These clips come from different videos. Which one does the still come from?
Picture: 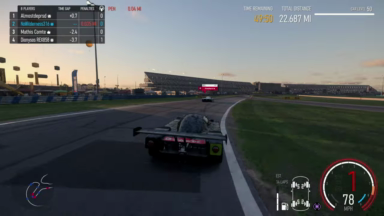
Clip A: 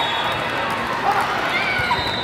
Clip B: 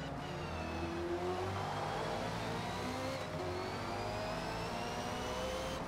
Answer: B